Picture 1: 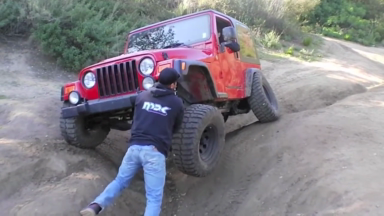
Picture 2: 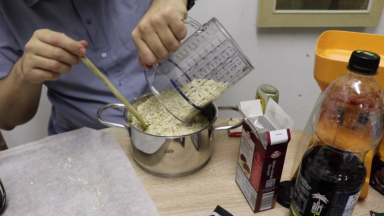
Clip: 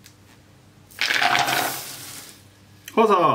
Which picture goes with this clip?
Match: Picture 2